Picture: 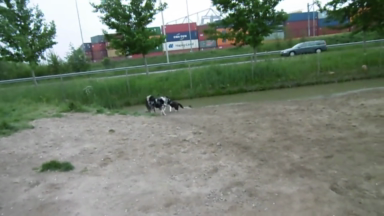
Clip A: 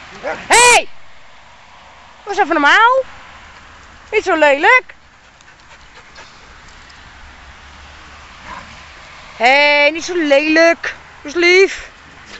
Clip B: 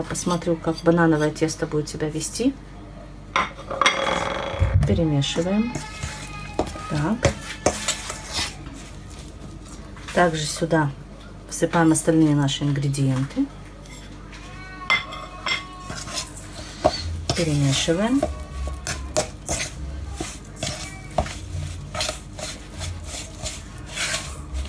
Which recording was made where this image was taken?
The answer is A